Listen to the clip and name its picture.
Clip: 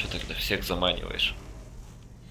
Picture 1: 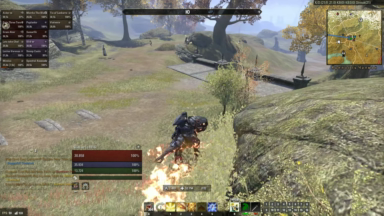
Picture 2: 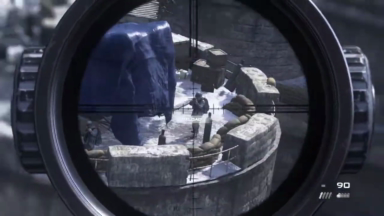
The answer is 1